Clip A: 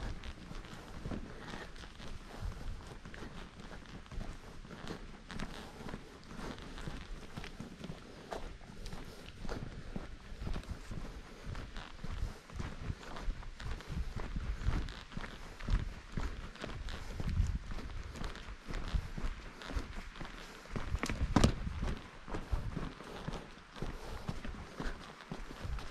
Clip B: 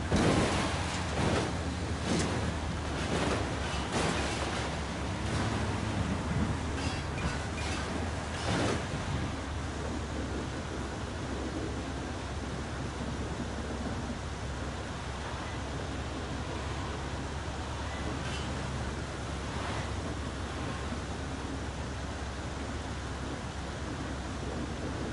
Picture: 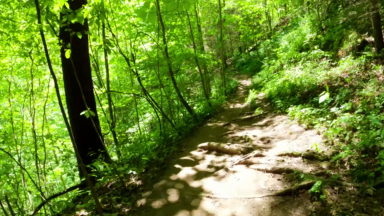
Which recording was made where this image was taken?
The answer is A